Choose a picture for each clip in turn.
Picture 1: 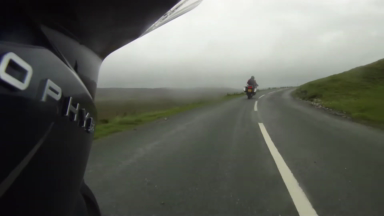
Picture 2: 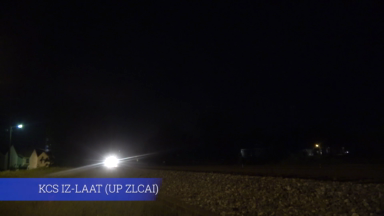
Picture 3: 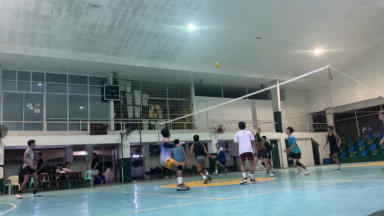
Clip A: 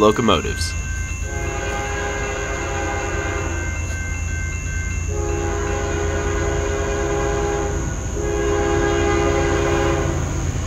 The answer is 2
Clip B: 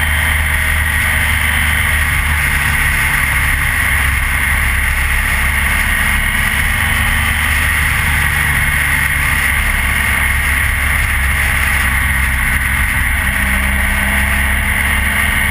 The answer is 1